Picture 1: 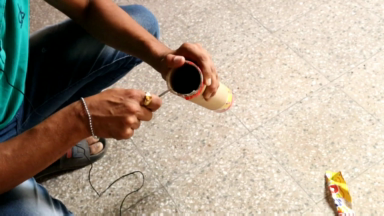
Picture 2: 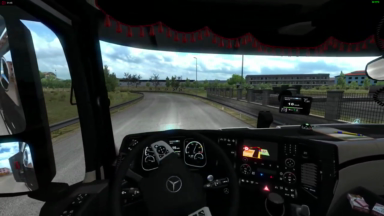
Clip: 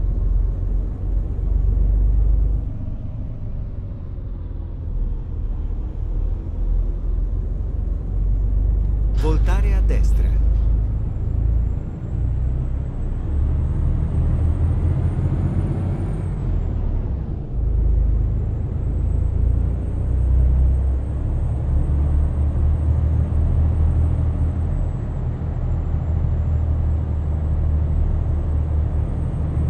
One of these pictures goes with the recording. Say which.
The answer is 2